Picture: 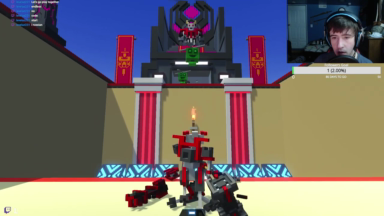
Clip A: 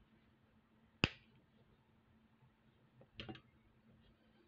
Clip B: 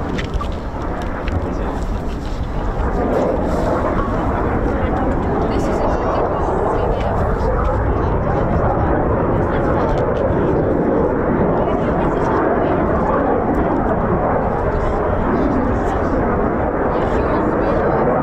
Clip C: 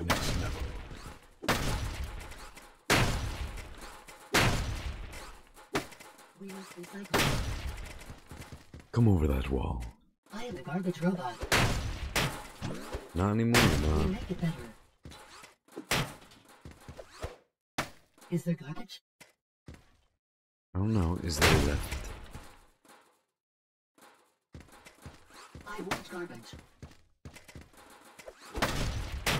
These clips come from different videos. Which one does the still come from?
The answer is C